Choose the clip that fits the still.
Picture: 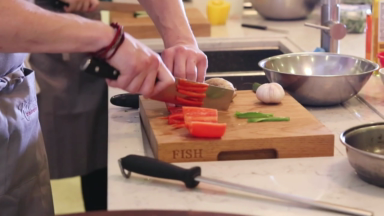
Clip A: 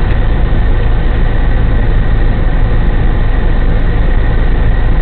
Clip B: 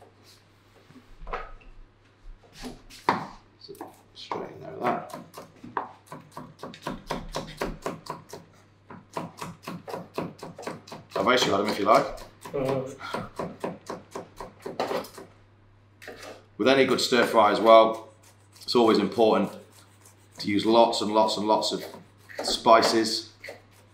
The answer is B